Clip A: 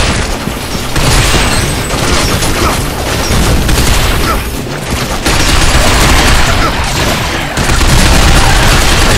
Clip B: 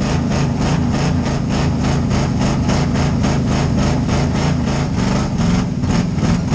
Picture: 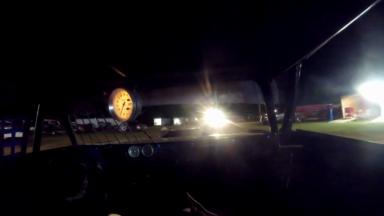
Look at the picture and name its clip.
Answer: B